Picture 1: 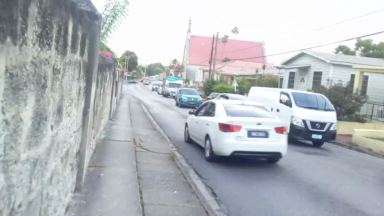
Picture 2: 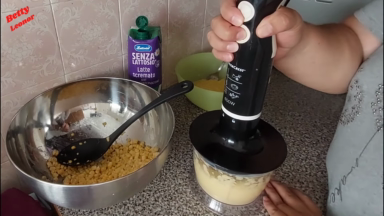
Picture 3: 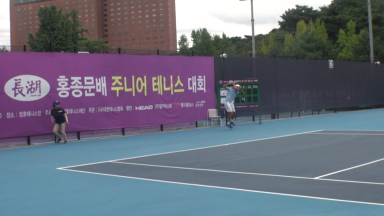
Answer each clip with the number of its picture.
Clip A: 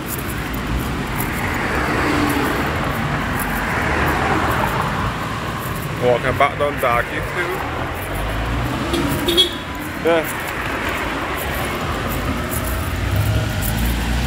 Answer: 1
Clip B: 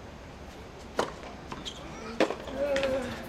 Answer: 3